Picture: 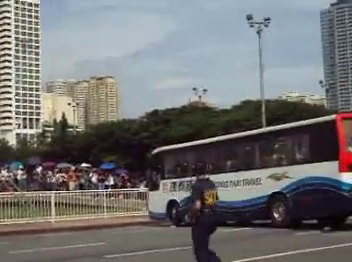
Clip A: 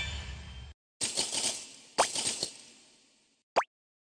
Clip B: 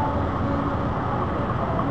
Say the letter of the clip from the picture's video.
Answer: B